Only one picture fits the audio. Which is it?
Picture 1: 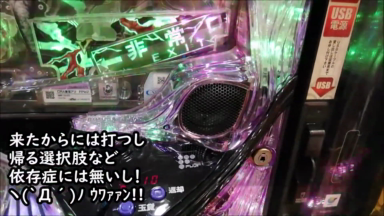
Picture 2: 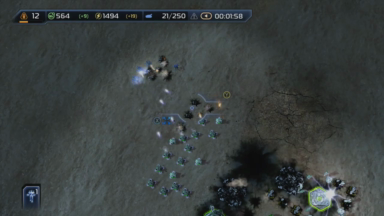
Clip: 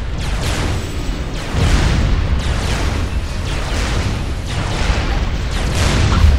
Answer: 2